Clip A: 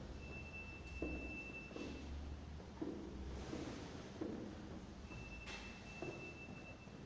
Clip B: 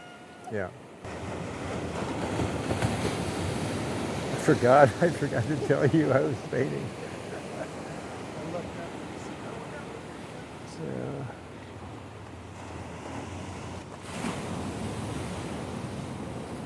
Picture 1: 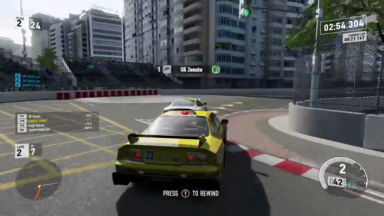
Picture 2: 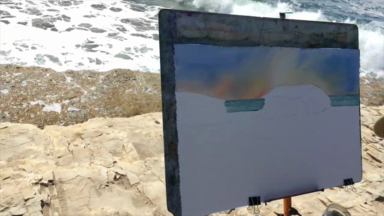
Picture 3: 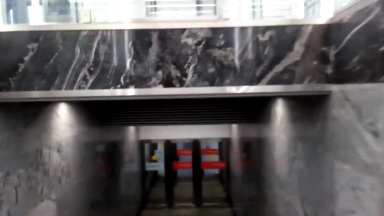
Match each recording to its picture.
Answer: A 3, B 2